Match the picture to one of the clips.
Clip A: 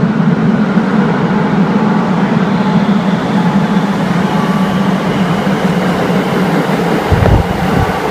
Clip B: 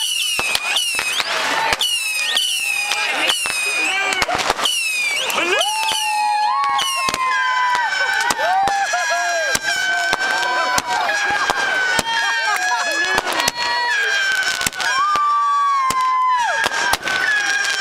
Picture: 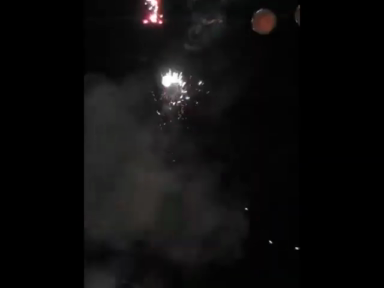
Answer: B